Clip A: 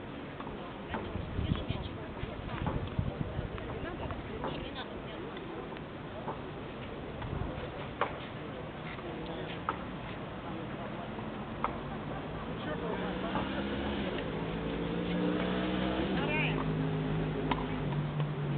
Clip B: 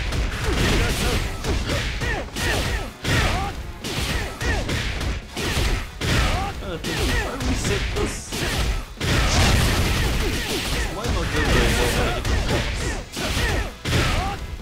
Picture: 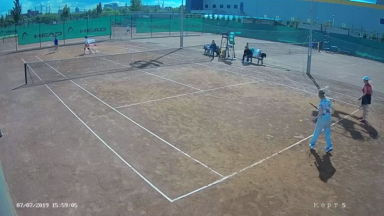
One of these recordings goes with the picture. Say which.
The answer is A